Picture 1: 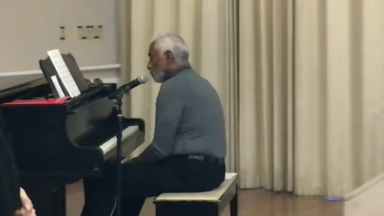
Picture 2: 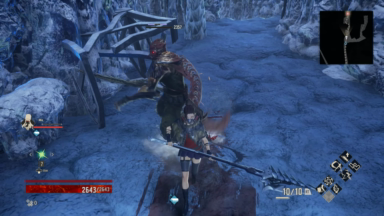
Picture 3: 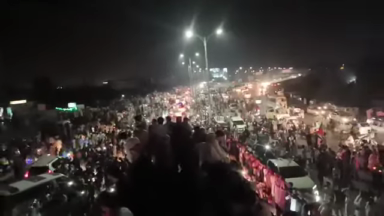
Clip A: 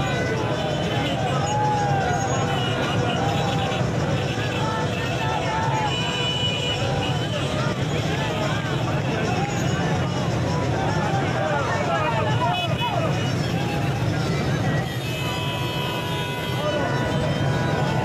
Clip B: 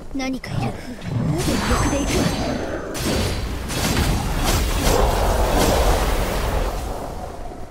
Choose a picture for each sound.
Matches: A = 3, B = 2